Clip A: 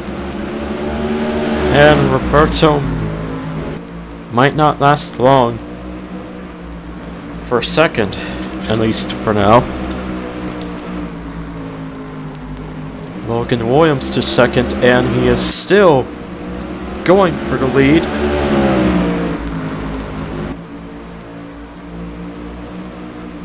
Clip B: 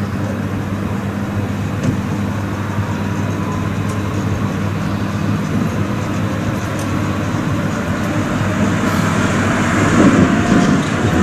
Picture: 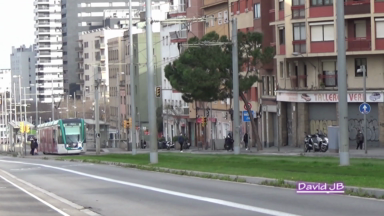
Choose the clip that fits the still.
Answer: B